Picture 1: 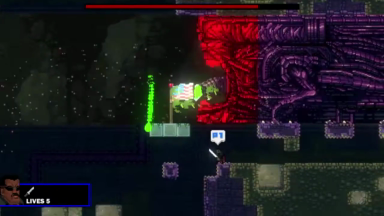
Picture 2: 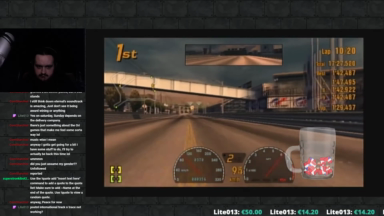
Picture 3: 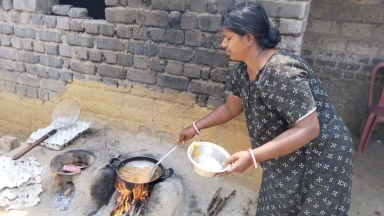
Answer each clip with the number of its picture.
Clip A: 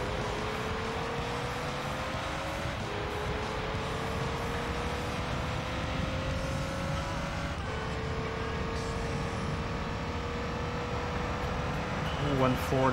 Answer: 2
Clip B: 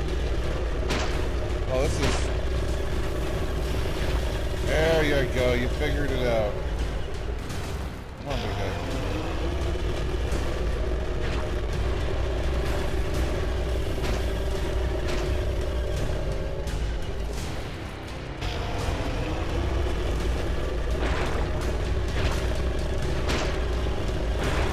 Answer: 1